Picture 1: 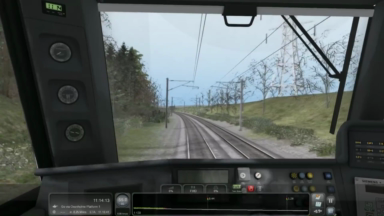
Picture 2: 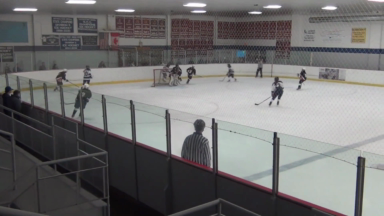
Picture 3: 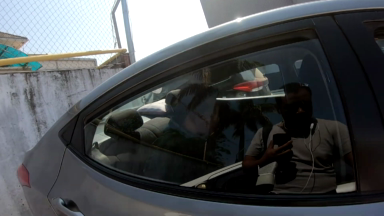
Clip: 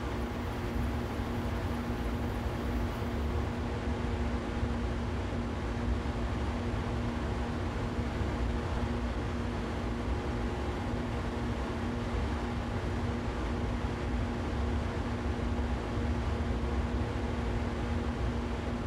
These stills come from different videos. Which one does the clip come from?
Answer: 1